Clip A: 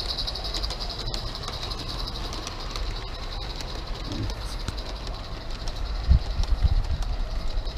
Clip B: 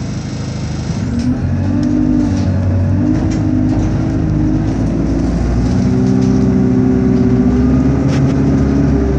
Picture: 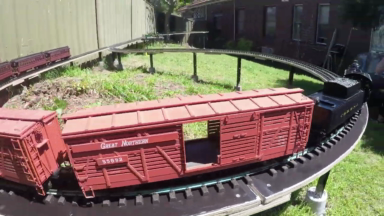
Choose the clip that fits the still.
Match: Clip A